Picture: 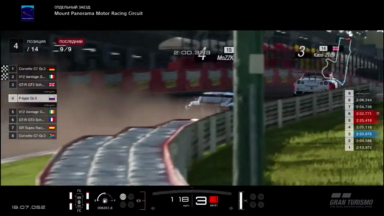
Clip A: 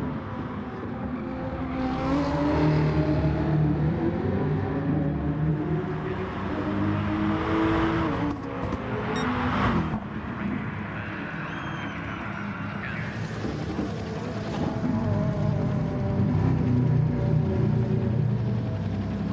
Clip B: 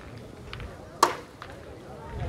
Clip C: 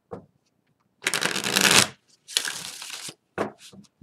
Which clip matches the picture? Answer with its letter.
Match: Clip A